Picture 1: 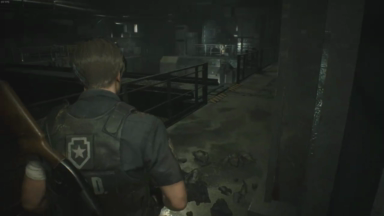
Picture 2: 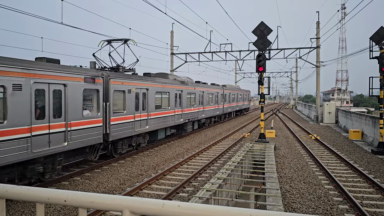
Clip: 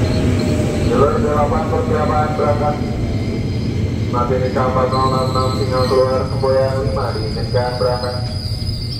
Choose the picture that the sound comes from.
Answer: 2